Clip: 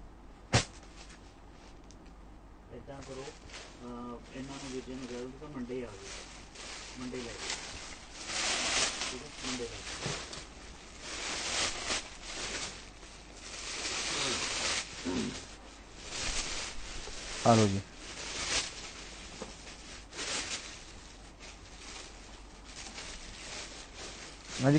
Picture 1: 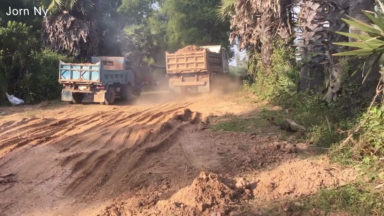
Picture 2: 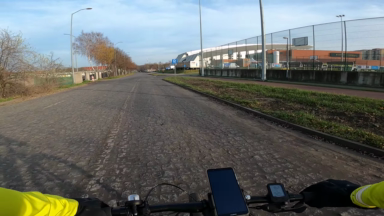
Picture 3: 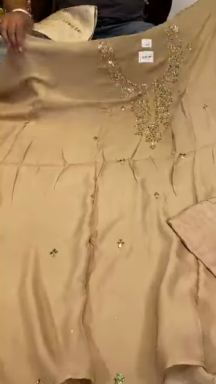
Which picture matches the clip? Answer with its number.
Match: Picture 3